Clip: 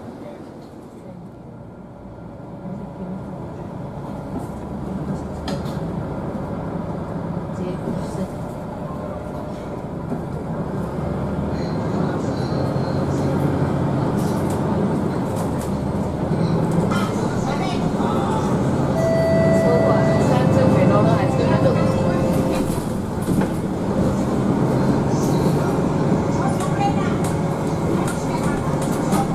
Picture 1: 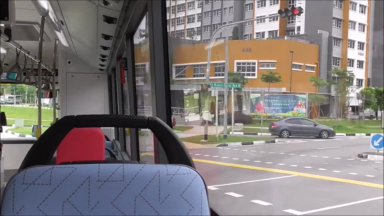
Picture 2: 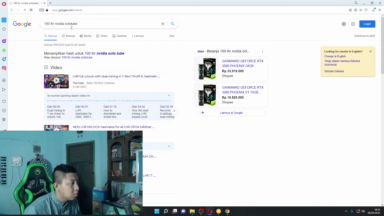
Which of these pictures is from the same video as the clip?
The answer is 1